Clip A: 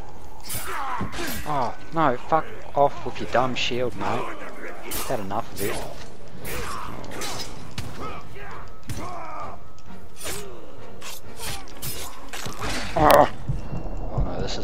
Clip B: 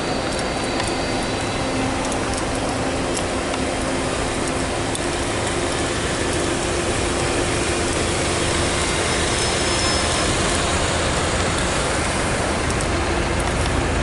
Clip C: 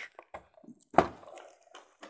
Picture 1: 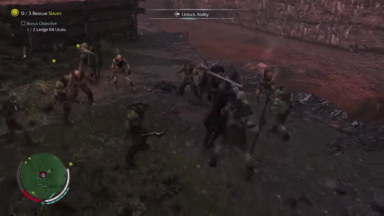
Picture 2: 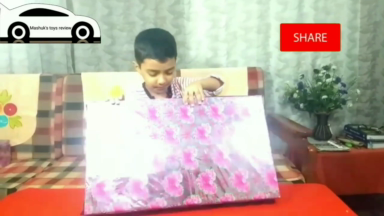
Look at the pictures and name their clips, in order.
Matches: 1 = A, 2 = C